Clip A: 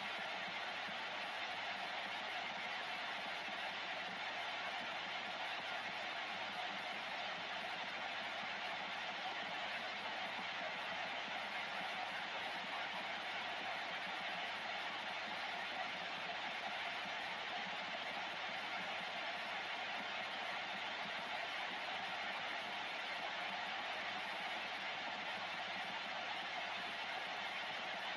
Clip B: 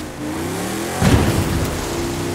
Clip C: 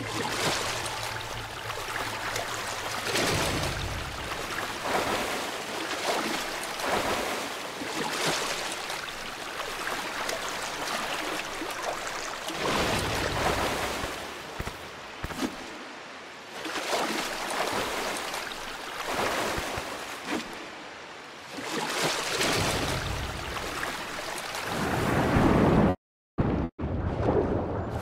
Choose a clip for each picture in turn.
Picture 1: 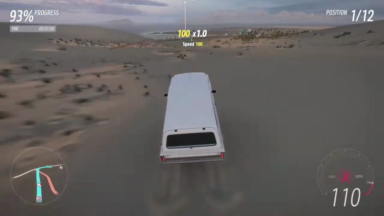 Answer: B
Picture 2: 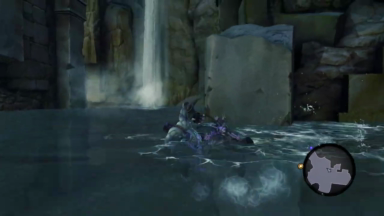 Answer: C